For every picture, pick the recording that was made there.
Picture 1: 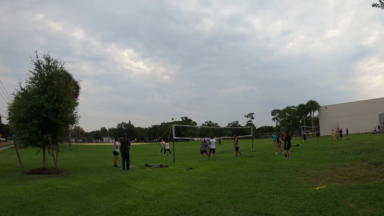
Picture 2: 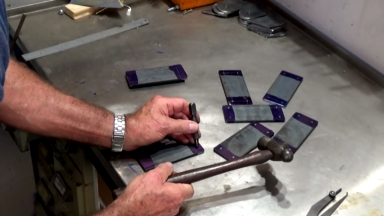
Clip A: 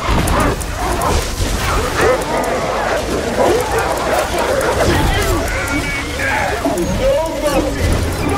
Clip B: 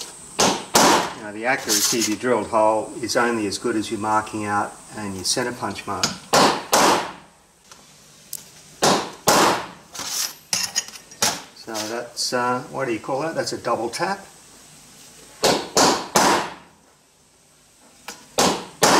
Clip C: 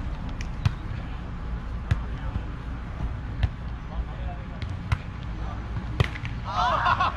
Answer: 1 C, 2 B